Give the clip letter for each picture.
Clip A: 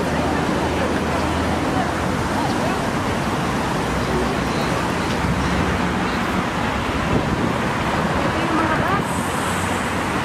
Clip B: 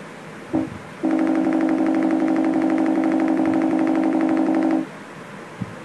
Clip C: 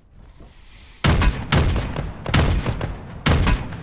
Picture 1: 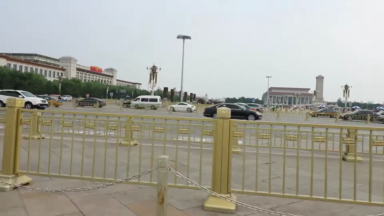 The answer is A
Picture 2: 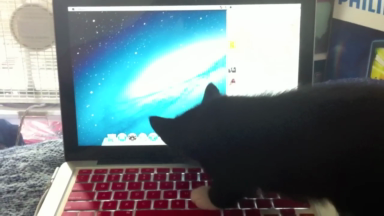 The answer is B